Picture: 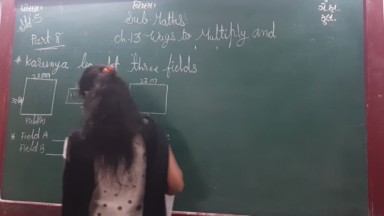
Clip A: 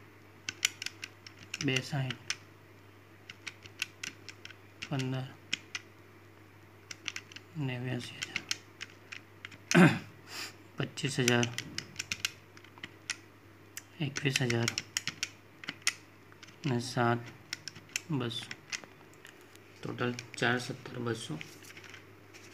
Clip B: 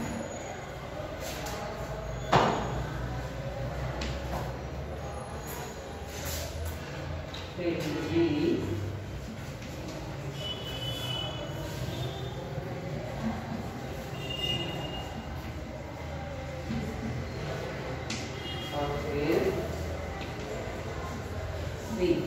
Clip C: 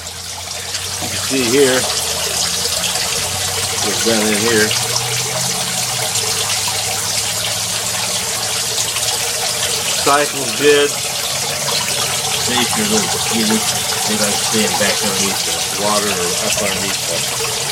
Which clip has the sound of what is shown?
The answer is B